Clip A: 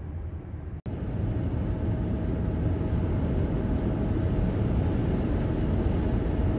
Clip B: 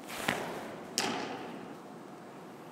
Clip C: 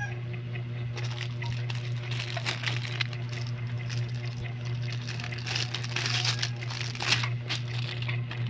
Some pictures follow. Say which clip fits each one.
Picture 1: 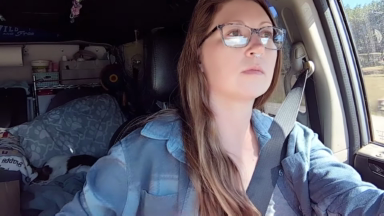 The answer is A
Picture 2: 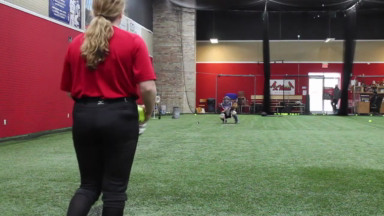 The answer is B